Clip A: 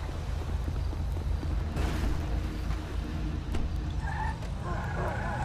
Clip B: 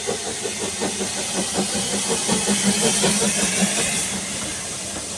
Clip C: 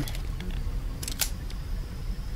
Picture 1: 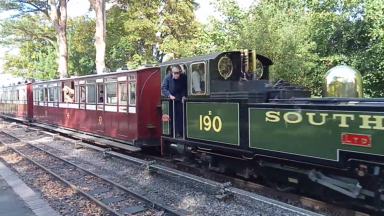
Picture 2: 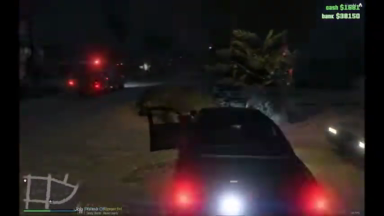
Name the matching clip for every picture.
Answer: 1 B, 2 A